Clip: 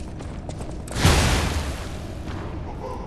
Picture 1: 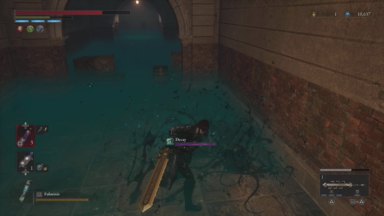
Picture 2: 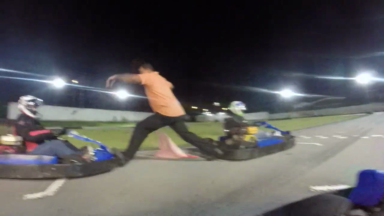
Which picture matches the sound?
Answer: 1